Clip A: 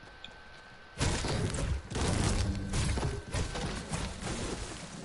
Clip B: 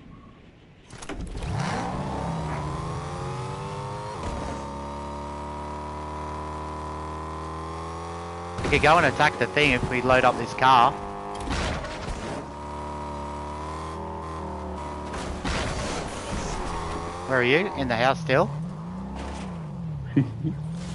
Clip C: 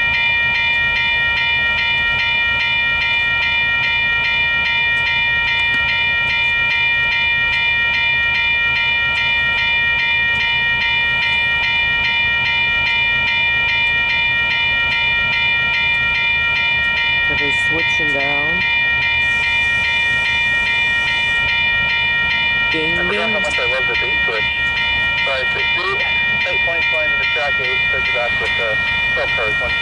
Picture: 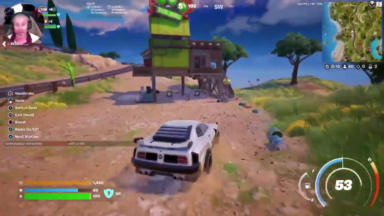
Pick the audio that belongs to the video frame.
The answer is B